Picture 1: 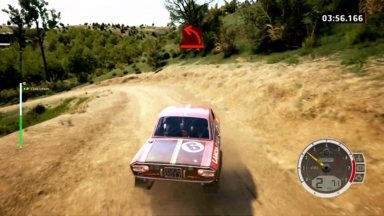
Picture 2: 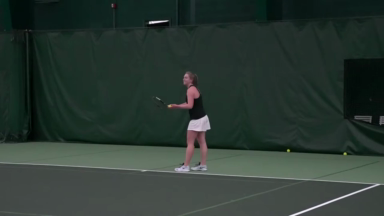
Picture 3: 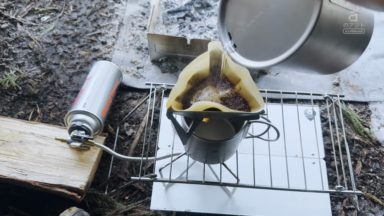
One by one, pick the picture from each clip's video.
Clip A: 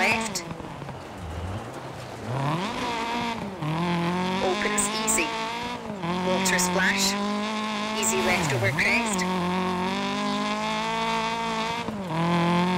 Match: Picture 1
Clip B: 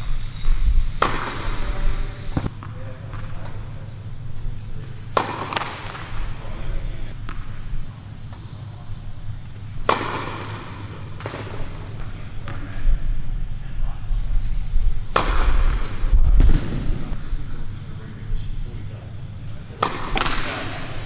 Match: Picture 2